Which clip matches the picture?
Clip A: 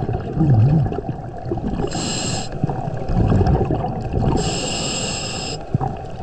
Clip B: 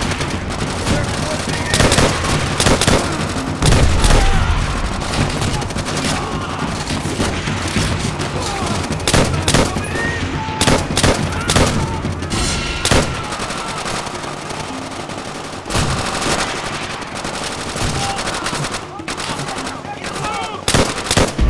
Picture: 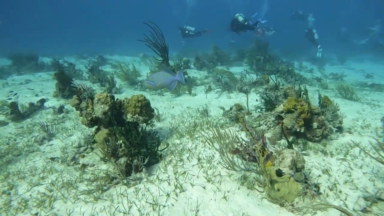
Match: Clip A